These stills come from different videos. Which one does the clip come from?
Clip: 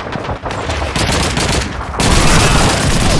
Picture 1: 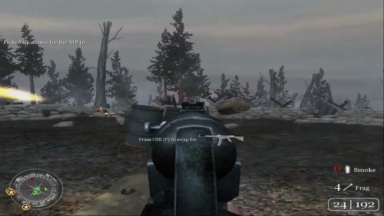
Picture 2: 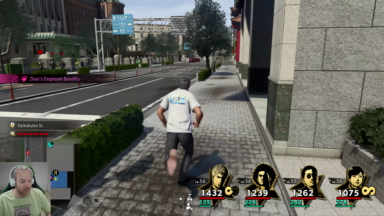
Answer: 1